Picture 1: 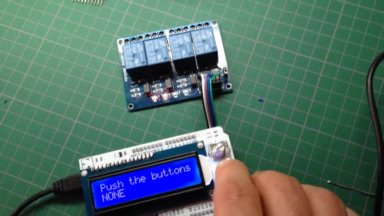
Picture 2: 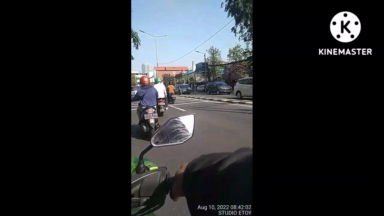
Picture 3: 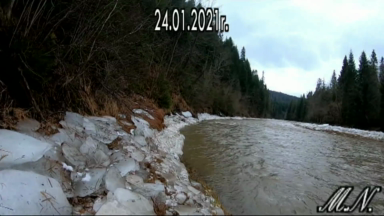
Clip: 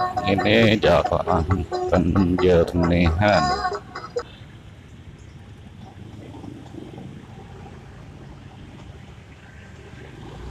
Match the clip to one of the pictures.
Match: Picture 2